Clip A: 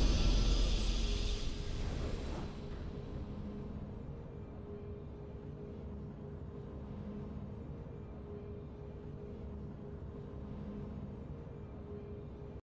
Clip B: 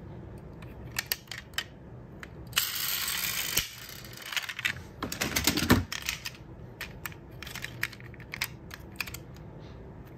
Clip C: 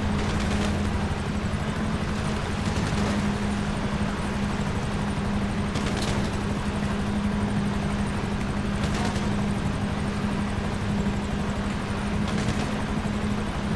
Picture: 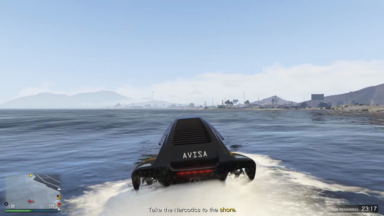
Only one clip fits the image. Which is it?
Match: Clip C